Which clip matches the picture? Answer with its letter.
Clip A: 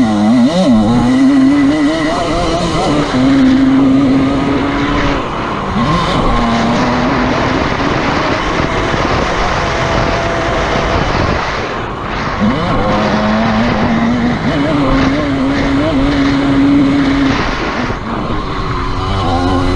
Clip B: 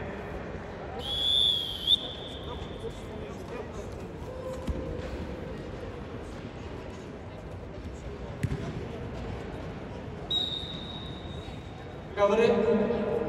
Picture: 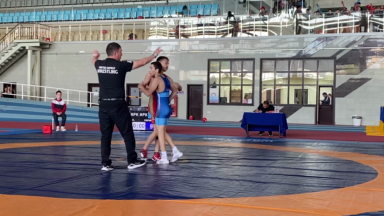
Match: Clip B